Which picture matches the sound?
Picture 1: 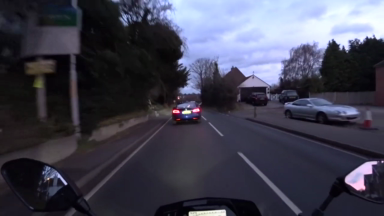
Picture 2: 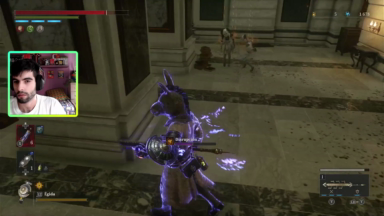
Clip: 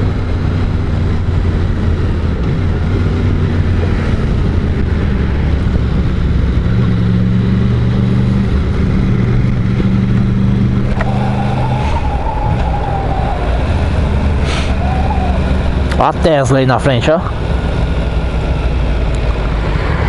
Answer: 1